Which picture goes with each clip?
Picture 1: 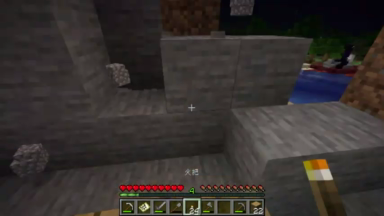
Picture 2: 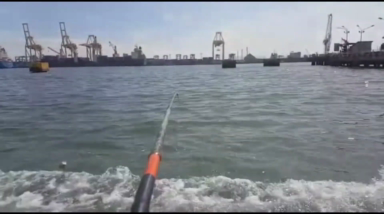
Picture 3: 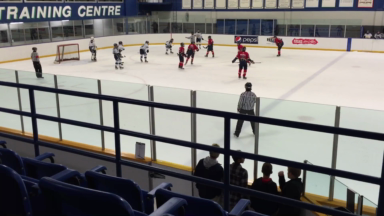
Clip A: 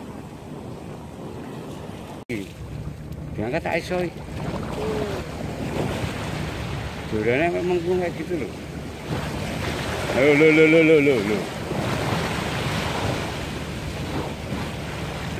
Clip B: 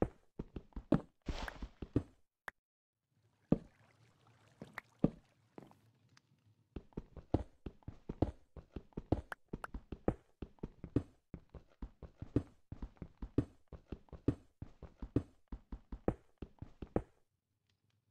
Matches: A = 2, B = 1